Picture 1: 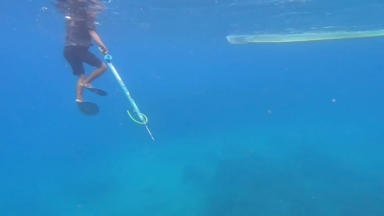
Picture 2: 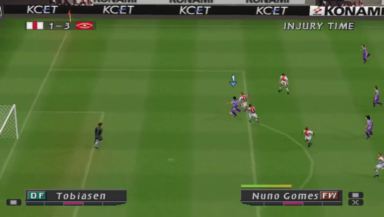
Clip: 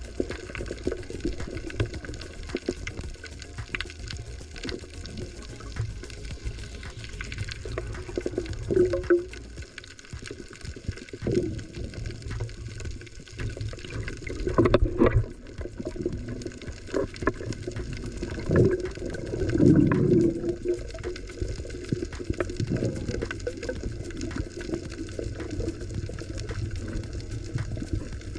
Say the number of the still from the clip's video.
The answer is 1